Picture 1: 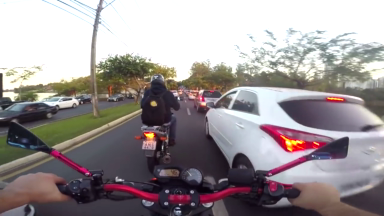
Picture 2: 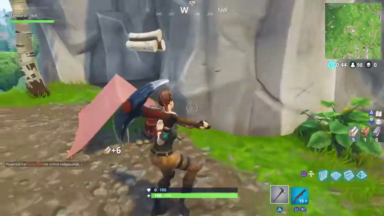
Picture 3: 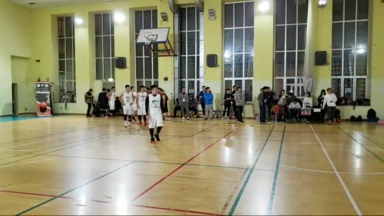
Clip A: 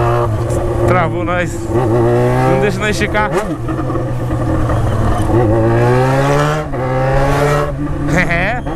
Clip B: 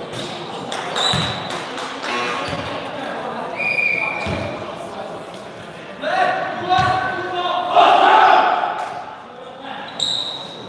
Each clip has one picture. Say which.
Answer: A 1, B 3